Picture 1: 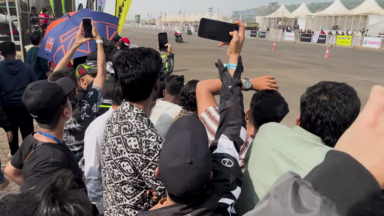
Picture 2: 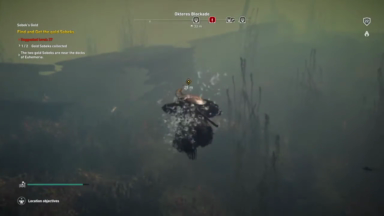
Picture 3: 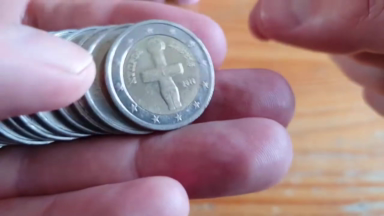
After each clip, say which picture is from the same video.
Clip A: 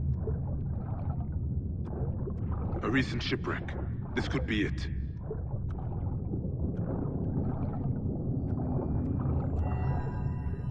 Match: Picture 2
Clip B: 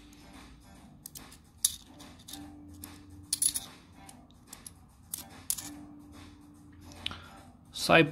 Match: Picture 3